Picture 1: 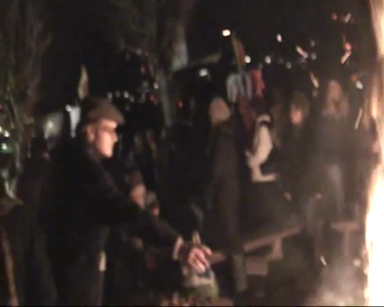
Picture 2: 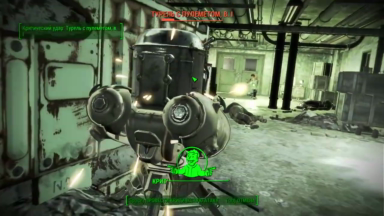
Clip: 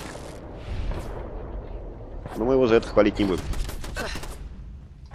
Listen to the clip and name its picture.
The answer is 2